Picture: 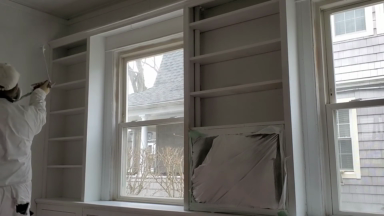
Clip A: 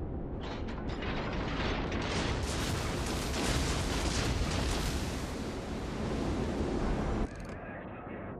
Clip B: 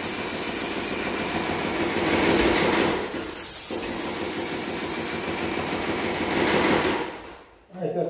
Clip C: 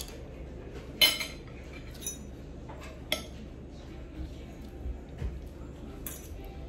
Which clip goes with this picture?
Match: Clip B